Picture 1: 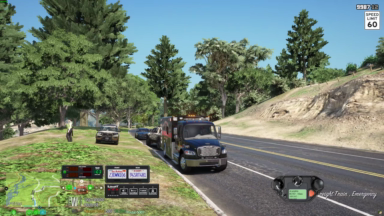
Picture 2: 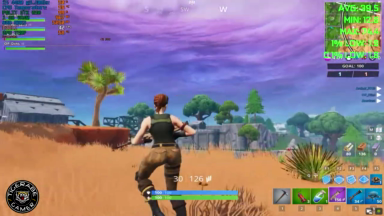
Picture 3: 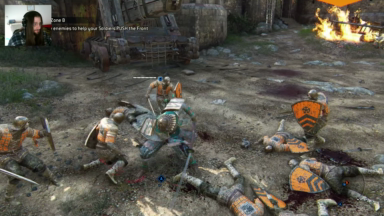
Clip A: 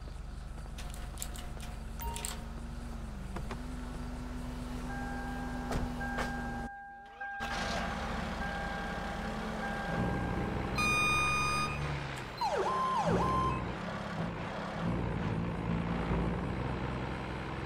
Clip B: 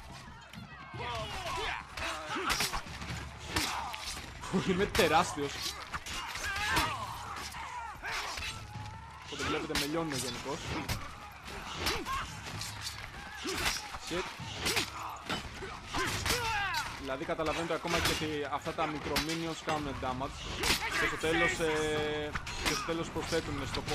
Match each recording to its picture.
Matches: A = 1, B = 3